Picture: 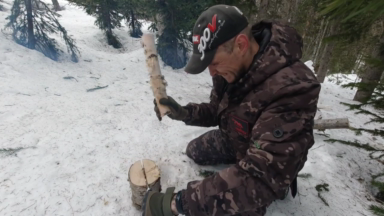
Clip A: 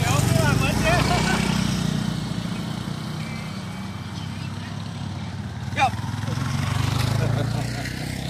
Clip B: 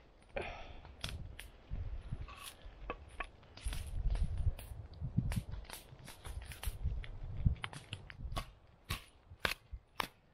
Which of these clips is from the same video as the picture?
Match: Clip B